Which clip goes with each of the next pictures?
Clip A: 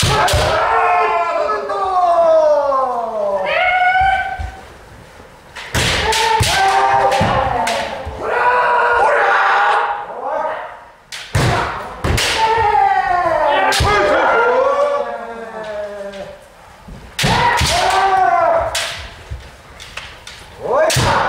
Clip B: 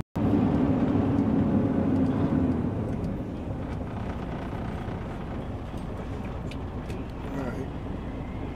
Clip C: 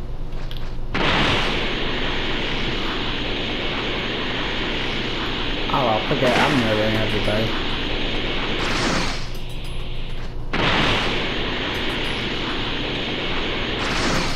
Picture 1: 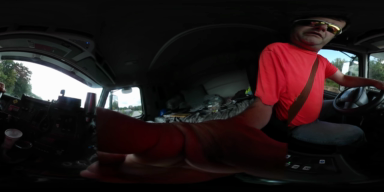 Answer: B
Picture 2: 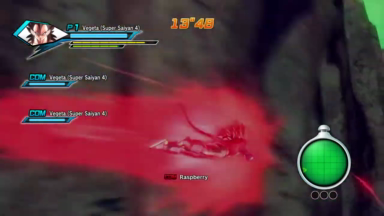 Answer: C